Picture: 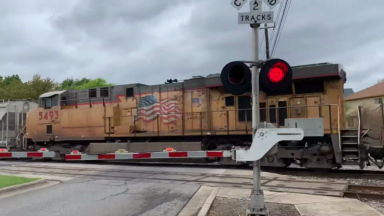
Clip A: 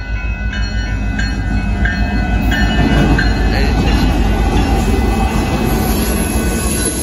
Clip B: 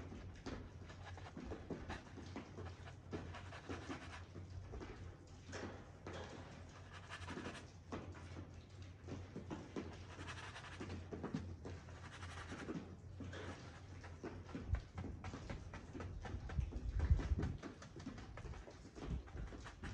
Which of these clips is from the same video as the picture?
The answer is A